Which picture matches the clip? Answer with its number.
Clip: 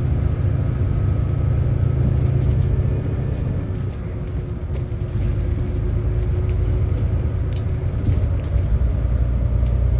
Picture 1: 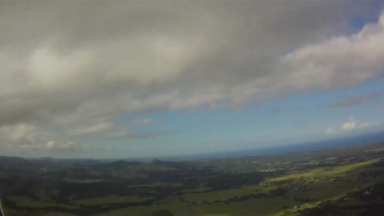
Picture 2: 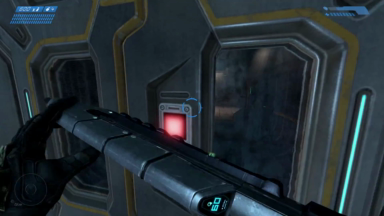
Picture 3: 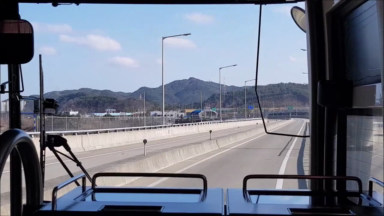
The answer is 3